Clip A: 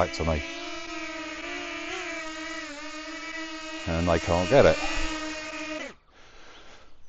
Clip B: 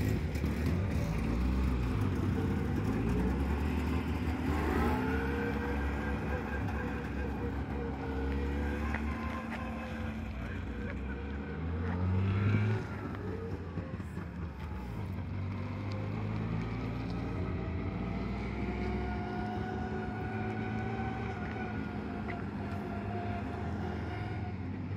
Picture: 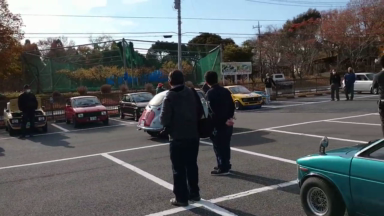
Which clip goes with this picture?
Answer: B